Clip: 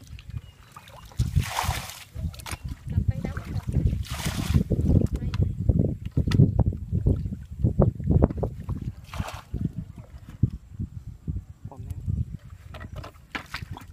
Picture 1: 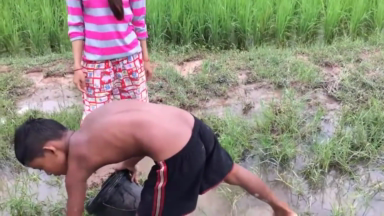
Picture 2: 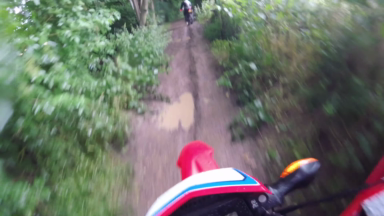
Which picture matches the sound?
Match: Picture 1